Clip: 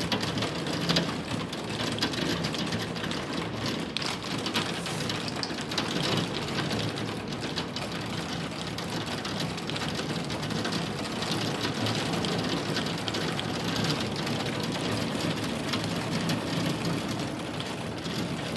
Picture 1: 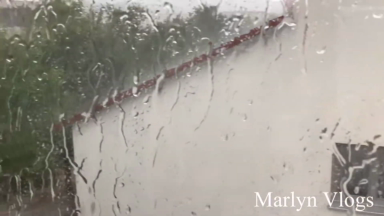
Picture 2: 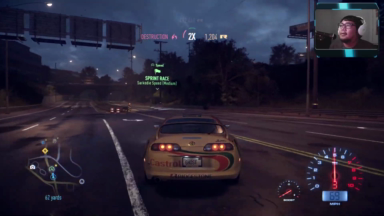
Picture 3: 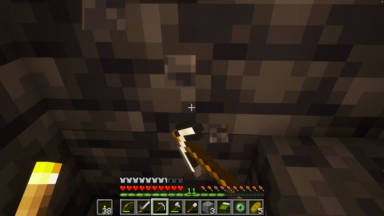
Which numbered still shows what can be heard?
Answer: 1